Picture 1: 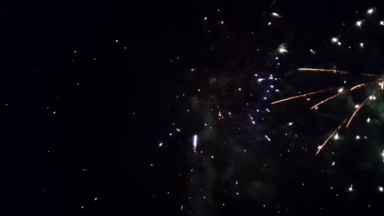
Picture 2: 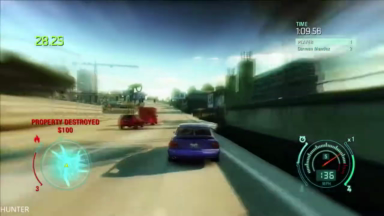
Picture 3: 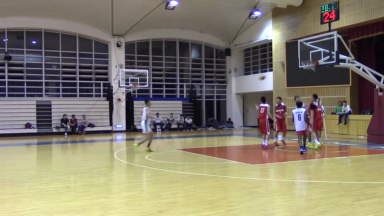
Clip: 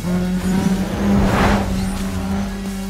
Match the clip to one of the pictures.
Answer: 2